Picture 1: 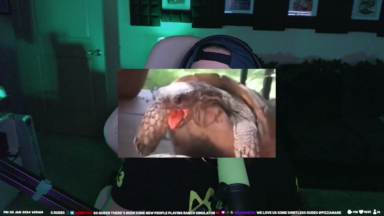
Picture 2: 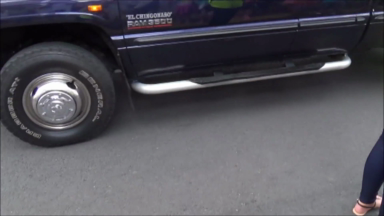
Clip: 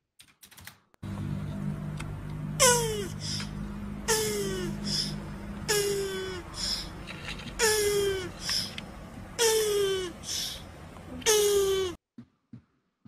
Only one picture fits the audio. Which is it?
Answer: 1